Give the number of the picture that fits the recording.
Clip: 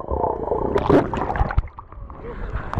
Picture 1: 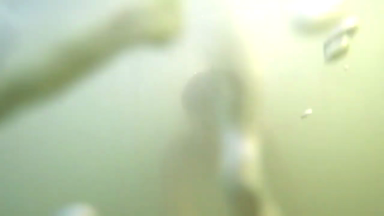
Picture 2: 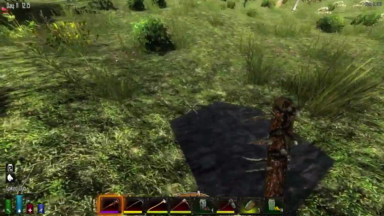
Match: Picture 1